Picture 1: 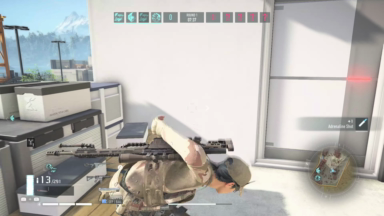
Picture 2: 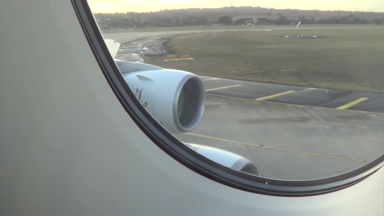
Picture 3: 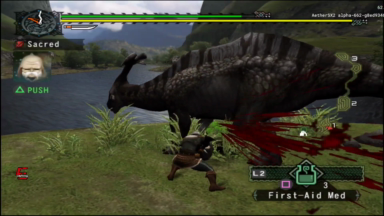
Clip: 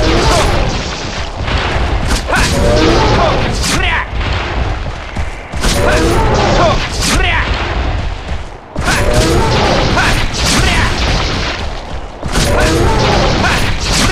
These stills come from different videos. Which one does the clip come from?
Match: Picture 3